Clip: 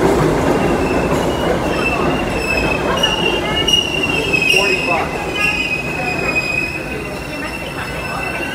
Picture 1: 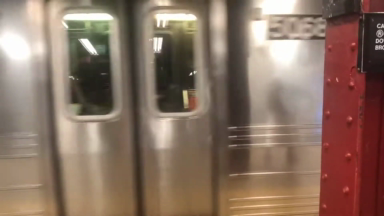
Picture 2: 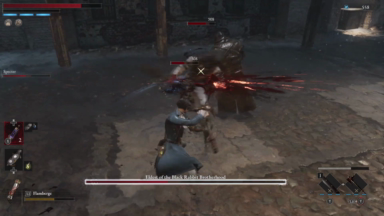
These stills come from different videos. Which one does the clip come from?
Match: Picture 1